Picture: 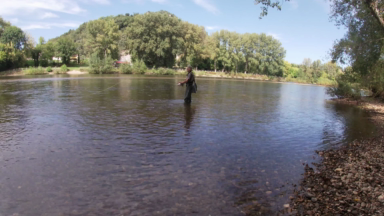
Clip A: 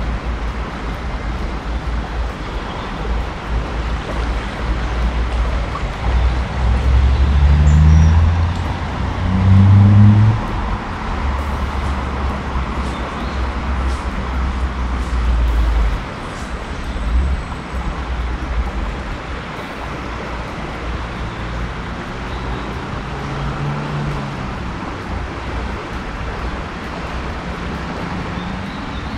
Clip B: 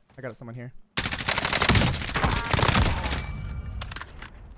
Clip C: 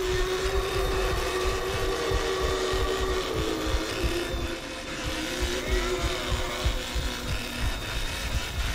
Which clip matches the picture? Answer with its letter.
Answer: A